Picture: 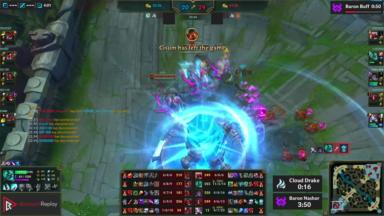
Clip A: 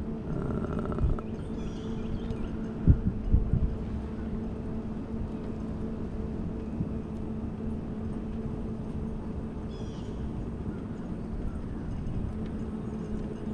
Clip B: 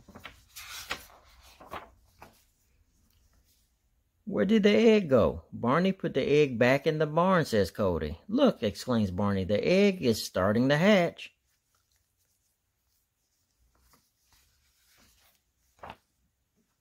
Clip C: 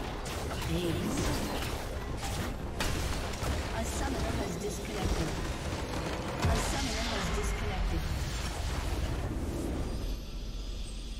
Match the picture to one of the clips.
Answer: C